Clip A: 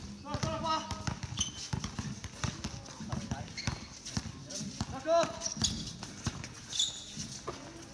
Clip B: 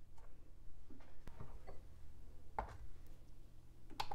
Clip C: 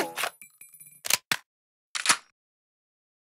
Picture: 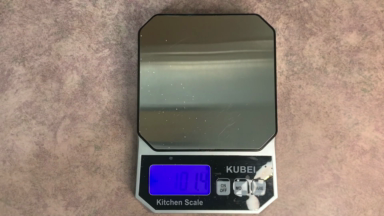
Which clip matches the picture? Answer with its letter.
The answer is B